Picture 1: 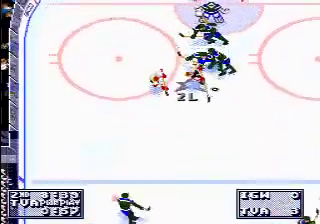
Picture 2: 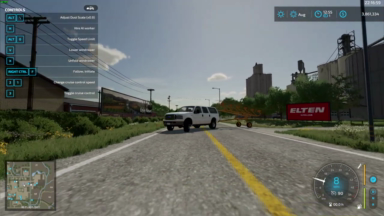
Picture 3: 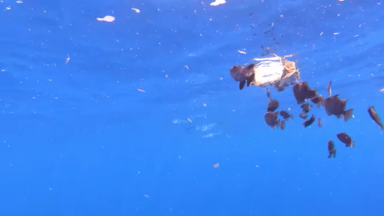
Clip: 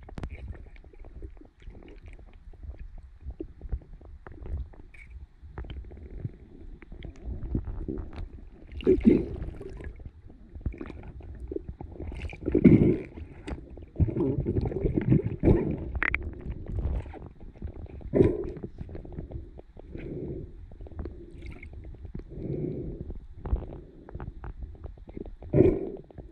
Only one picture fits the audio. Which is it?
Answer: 3